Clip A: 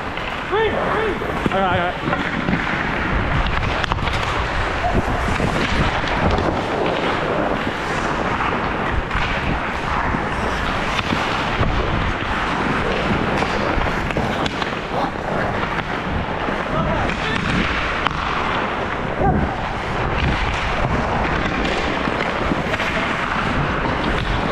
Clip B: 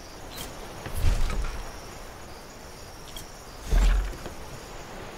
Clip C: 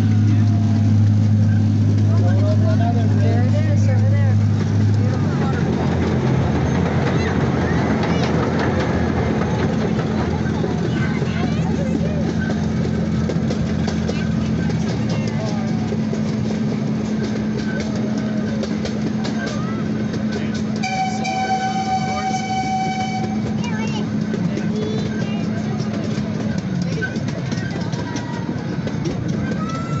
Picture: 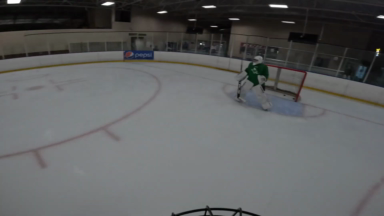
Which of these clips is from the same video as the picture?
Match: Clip A